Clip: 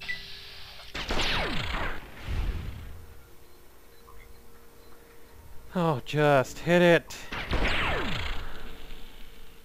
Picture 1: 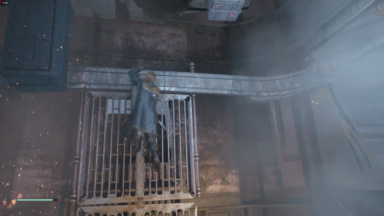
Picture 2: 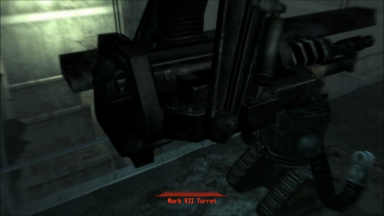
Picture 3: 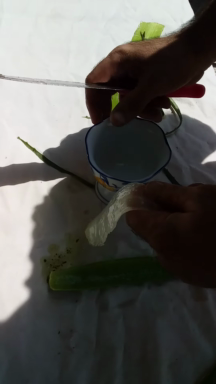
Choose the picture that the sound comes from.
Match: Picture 2